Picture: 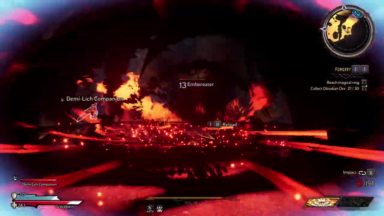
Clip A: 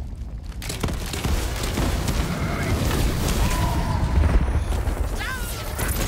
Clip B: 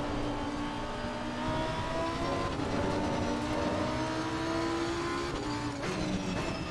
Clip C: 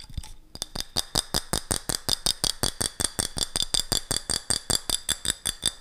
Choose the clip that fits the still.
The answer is A